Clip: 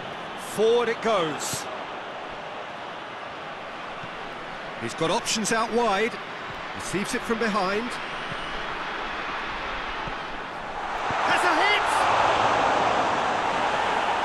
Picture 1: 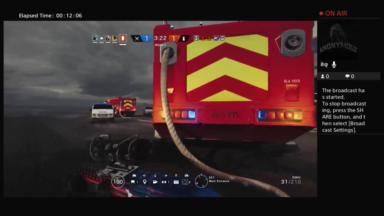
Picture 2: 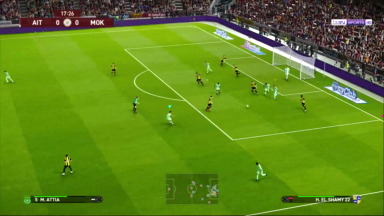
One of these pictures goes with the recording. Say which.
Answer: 2